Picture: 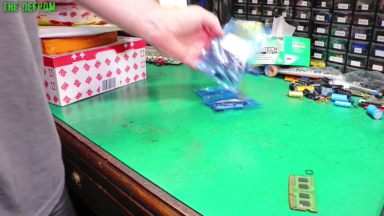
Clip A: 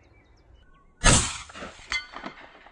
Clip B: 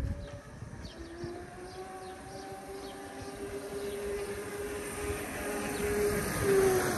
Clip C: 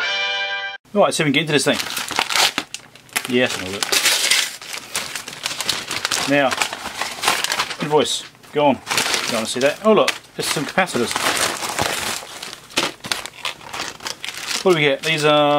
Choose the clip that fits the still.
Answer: C